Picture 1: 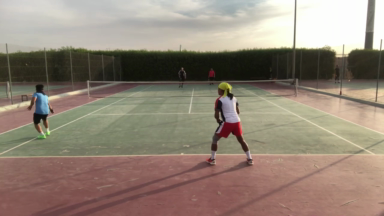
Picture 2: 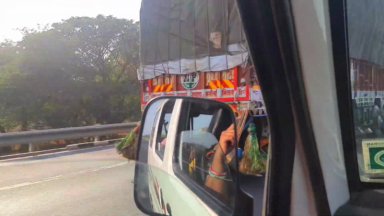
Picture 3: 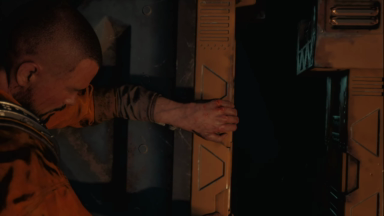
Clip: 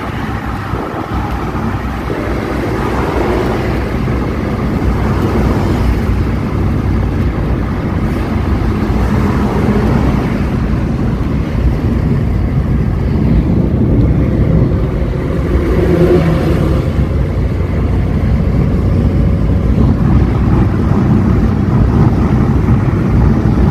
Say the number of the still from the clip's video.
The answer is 2